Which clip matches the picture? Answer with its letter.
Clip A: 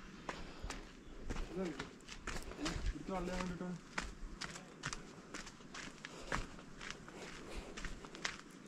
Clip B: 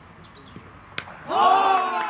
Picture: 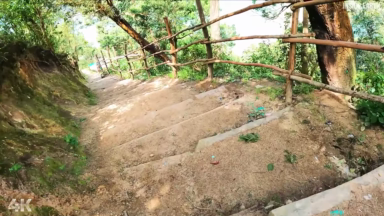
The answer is A